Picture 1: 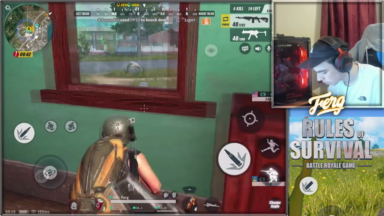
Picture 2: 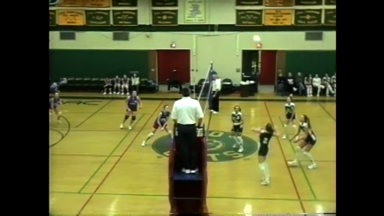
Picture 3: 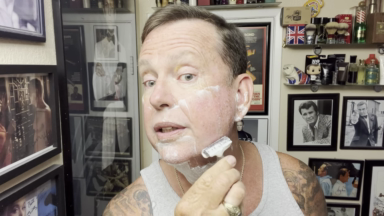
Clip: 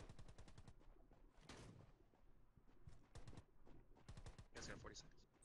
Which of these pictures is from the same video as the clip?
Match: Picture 1